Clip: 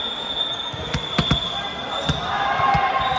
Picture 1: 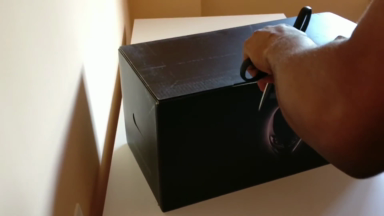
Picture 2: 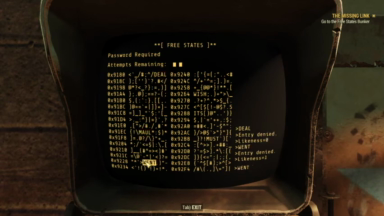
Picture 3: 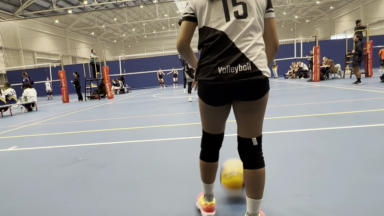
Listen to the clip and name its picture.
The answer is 3